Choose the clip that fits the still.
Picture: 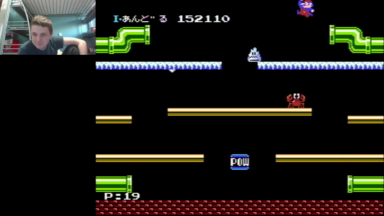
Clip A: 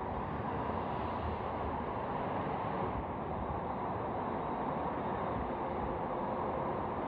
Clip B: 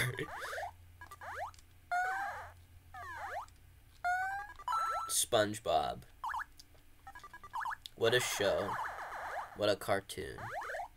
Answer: B